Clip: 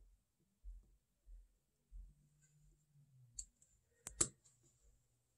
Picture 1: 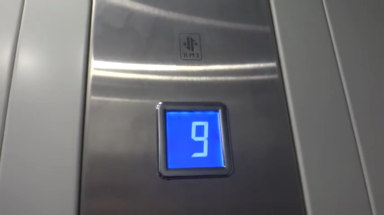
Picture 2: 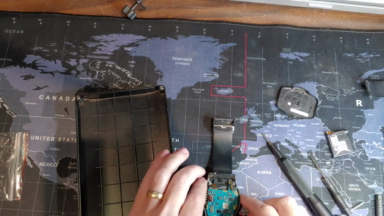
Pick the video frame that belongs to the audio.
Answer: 2